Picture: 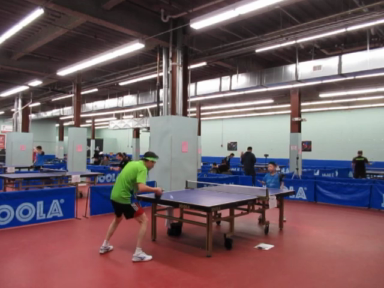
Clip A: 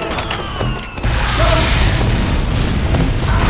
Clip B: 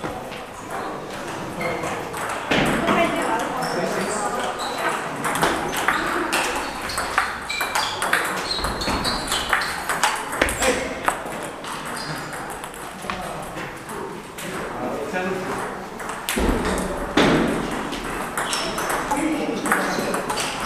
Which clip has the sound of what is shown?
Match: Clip B